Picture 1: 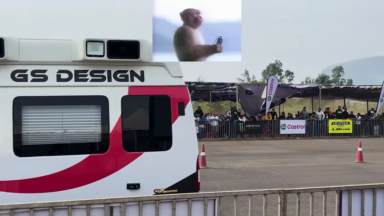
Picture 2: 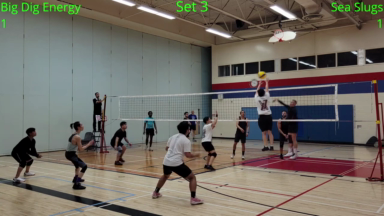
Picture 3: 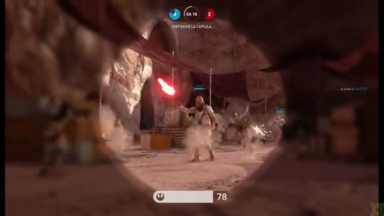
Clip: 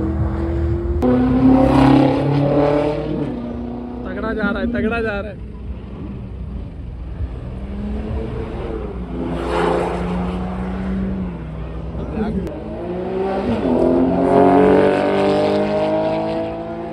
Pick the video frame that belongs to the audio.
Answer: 1